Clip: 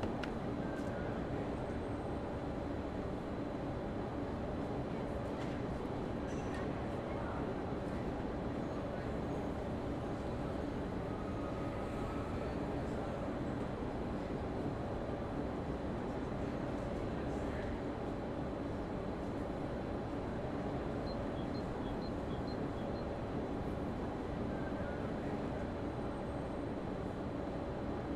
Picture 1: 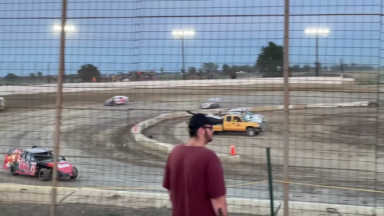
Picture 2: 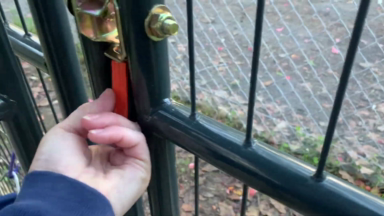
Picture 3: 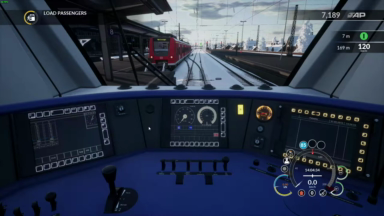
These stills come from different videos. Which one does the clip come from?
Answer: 3